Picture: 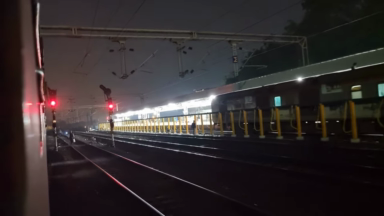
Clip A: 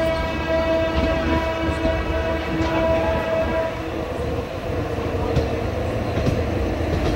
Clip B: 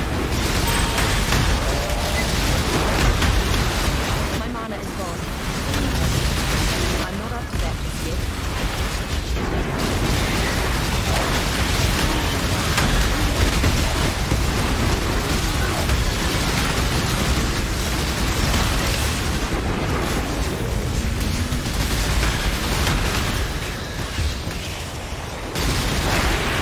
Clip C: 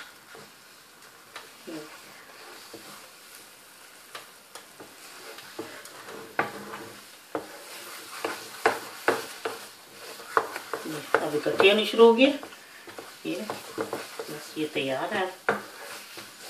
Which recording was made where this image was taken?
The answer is A